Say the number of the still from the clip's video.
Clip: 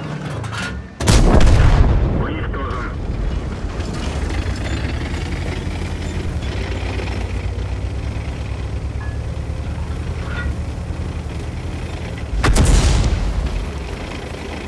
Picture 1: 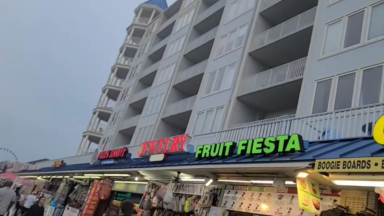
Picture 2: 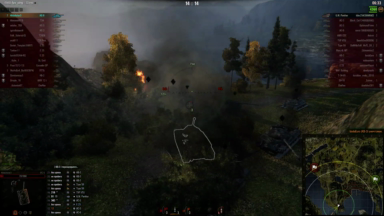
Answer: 2